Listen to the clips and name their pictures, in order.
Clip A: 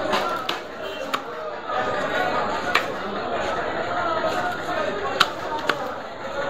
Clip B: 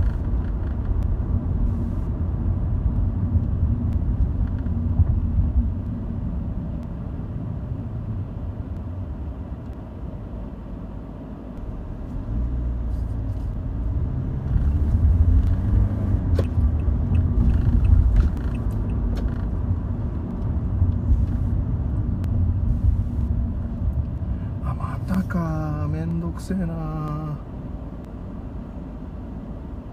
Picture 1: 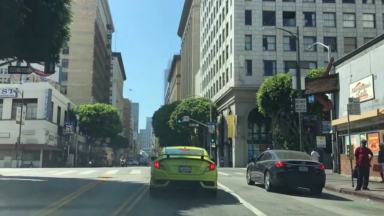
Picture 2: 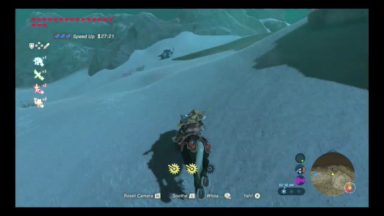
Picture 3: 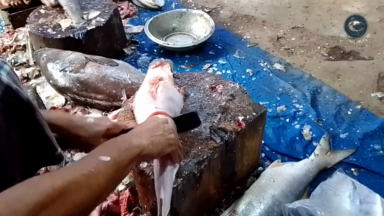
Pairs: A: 3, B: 1